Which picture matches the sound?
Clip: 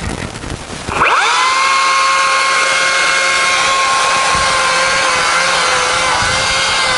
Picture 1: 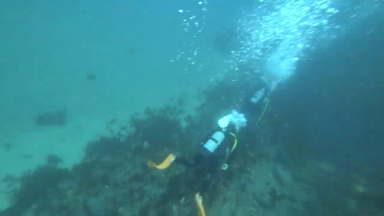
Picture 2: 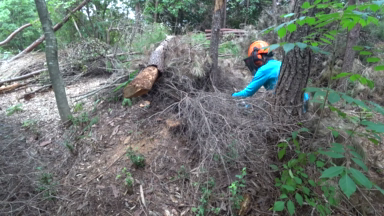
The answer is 2